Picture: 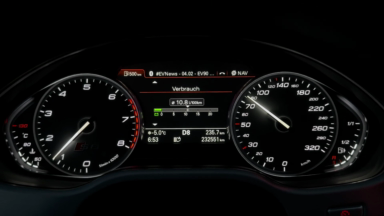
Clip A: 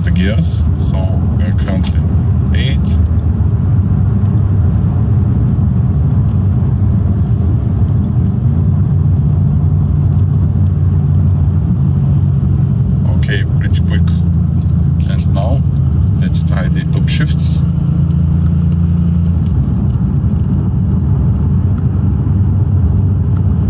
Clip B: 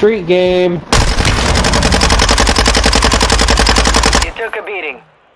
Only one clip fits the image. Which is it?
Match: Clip A